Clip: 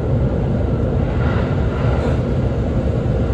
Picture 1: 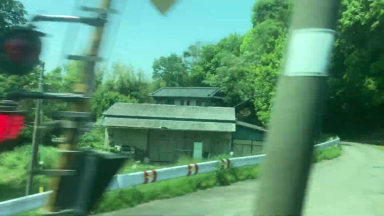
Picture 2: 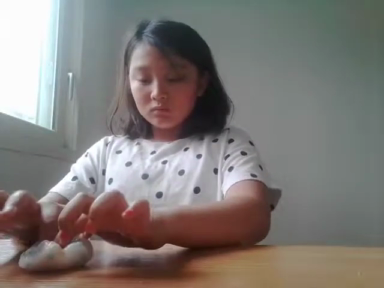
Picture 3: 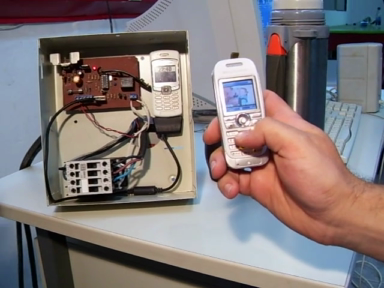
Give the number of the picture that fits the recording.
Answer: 1